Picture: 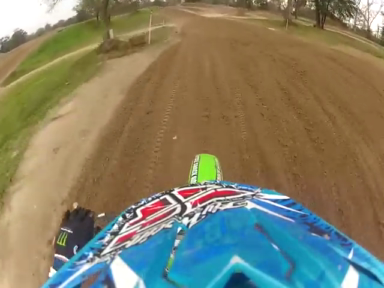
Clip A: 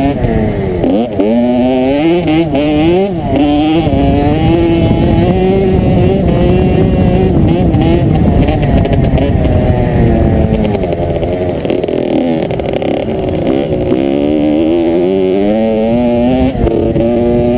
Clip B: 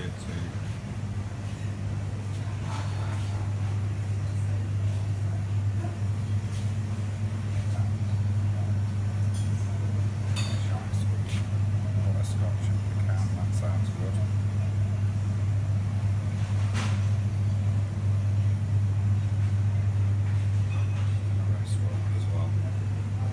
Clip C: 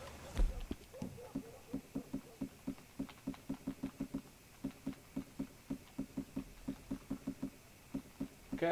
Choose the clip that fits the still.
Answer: A